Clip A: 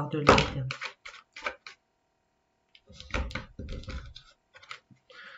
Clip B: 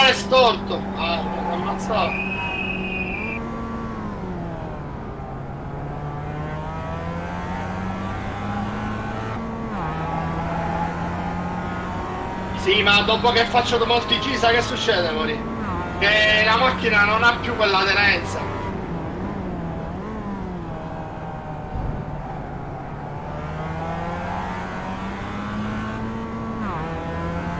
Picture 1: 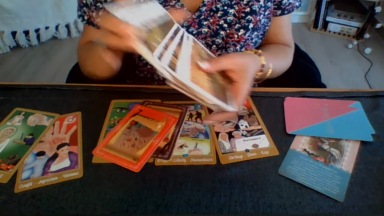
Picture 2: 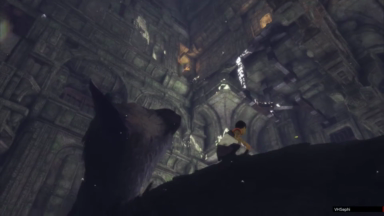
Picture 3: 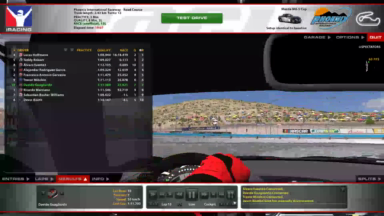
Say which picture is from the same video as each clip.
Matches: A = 1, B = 3